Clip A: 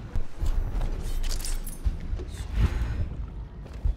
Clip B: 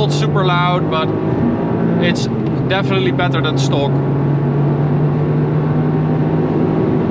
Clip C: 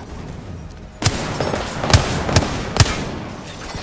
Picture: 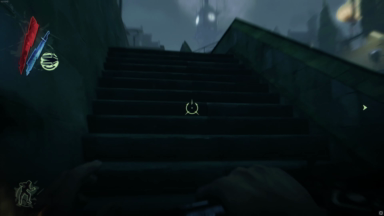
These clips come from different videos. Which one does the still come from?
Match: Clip A